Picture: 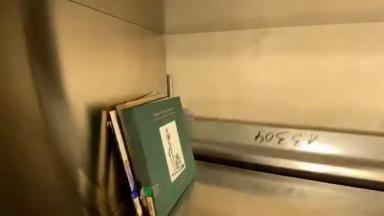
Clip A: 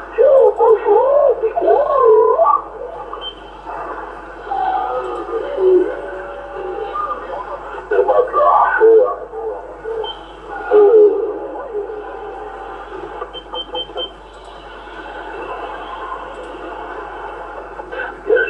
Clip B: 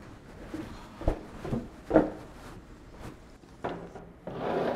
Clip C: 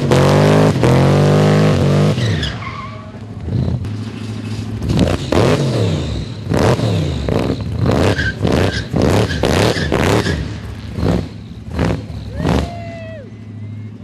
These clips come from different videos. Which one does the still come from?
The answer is B